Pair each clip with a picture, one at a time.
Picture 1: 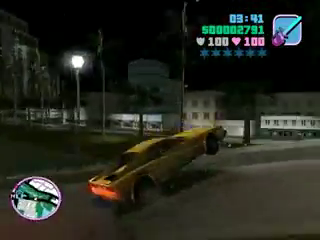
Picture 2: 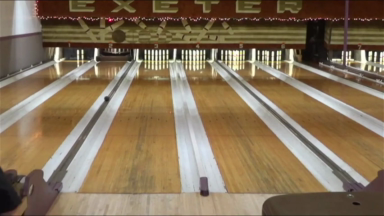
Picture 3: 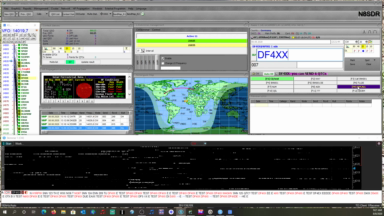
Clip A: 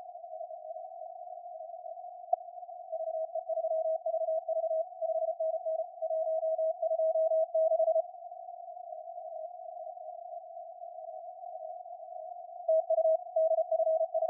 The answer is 3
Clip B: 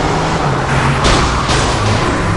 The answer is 1